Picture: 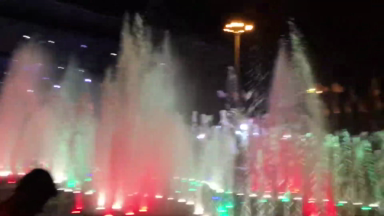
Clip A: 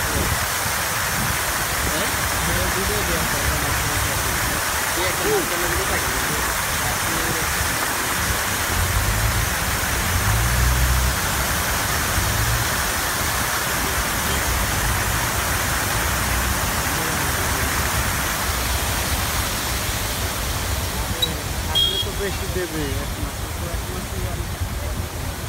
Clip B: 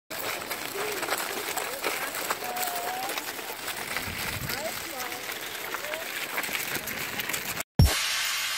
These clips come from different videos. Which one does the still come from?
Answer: A